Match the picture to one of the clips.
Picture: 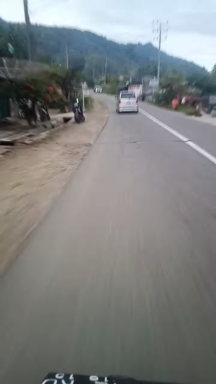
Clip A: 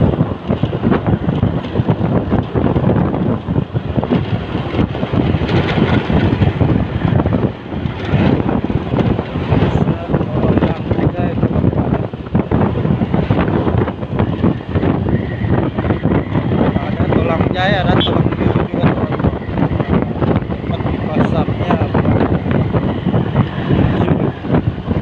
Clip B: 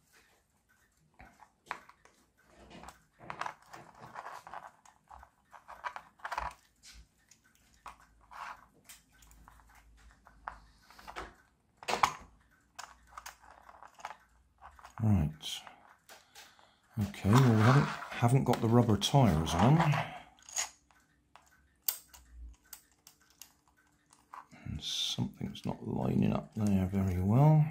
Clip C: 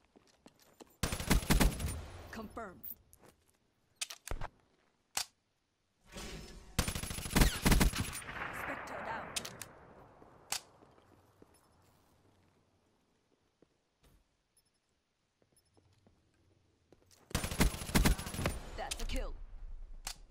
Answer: A